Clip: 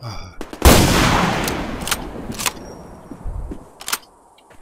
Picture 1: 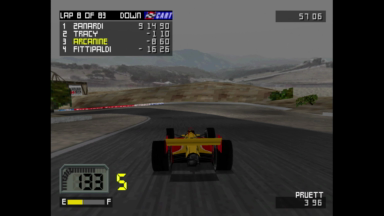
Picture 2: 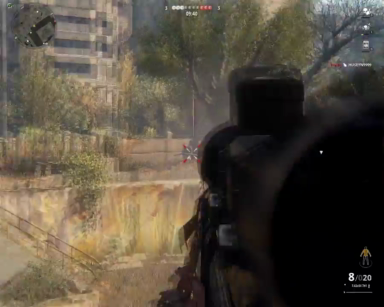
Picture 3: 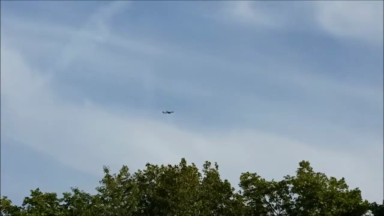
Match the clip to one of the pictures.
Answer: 2